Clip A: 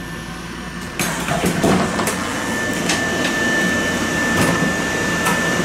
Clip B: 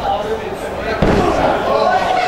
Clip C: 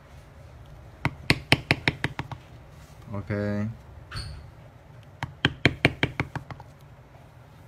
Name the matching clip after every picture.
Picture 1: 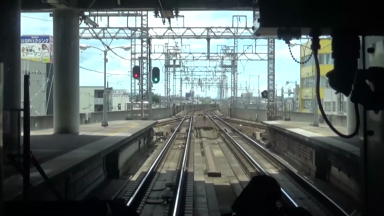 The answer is A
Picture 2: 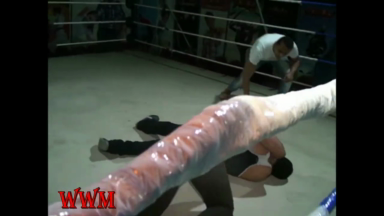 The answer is B